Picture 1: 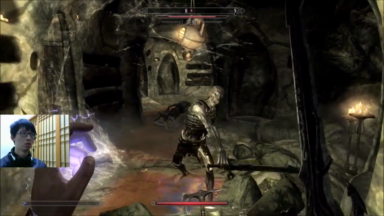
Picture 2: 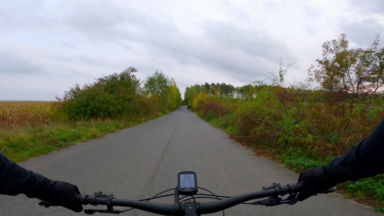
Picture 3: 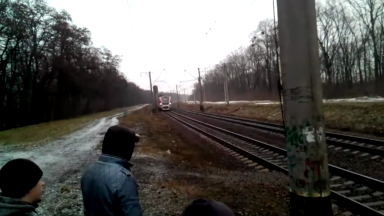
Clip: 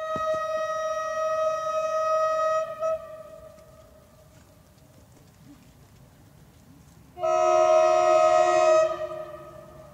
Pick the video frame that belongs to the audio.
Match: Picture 3